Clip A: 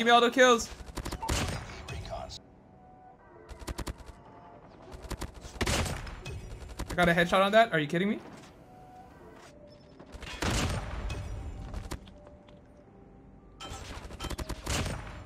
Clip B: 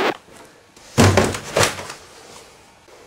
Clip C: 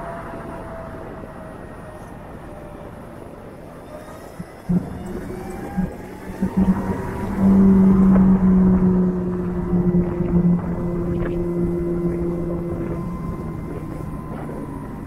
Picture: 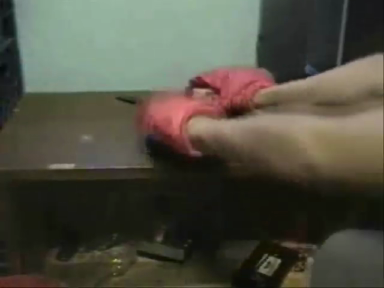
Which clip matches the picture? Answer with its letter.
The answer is B